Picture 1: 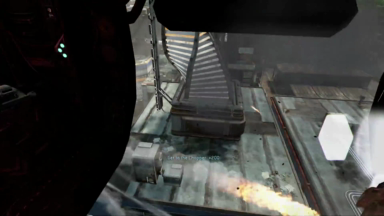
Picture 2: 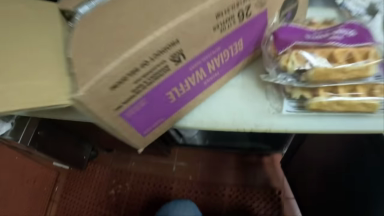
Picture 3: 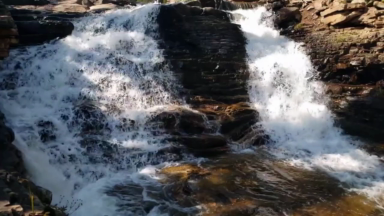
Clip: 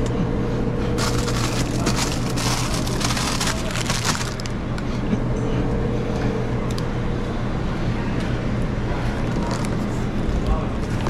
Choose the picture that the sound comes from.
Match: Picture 2